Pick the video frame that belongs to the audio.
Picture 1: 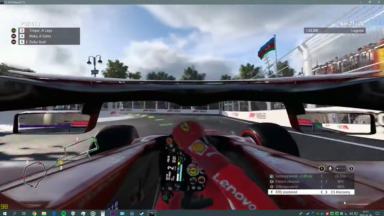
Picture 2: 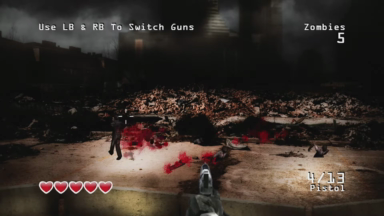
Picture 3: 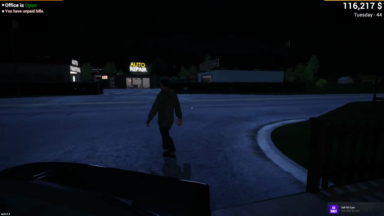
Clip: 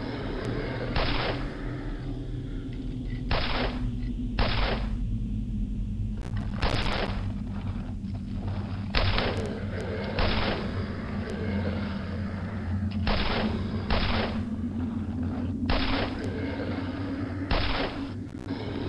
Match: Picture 2